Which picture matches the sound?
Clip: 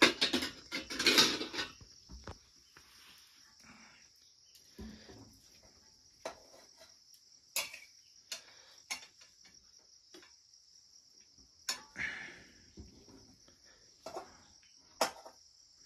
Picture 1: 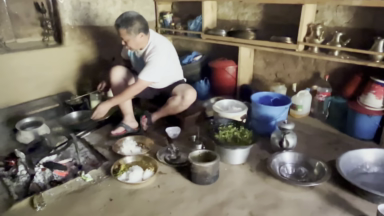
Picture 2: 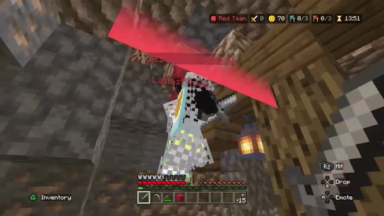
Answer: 1